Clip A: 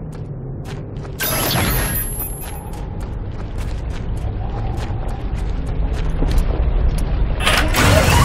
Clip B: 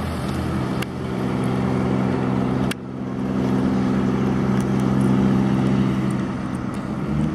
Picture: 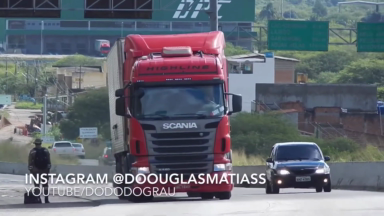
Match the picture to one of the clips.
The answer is B